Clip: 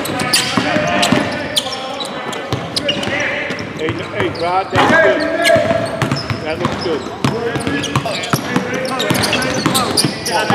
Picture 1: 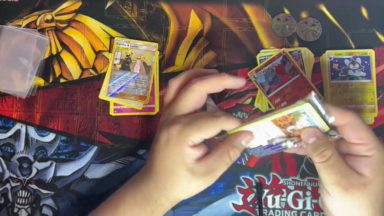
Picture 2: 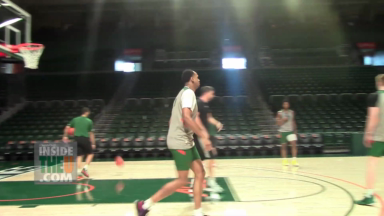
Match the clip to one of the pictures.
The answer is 2